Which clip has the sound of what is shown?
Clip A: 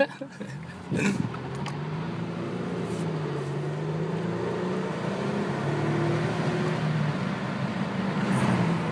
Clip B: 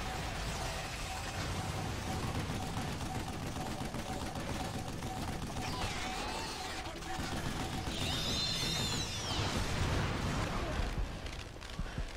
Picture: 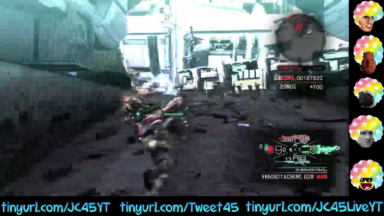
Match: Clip B